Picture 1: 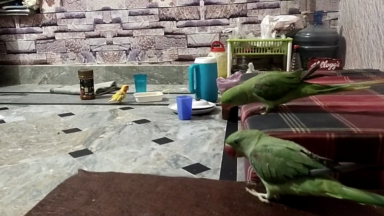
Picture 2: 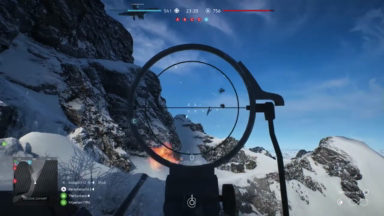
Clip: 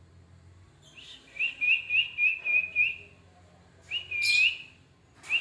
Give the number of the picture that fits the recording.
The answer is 1